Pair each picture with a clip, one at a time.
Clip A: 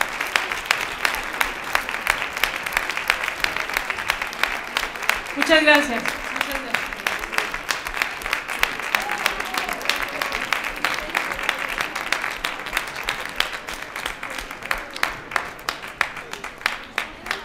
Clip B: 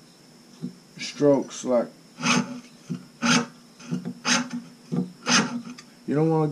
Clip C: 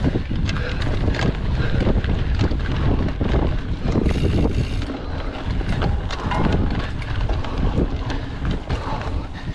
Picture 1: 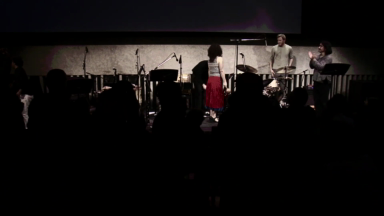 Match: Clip A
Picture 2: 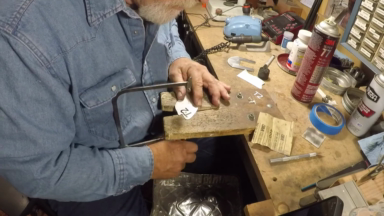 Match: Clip B